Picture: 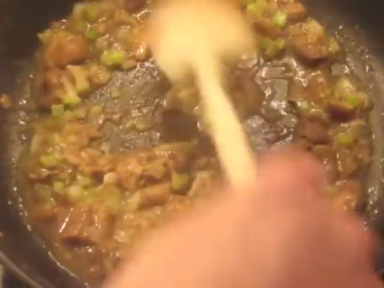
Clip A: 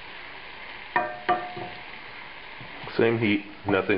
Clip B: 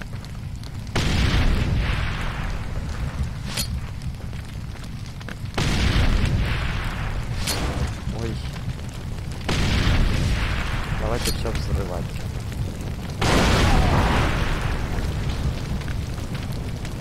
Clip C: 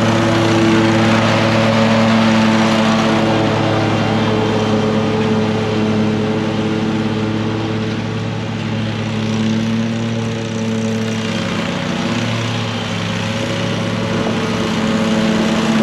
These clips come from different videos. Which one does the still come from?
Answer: A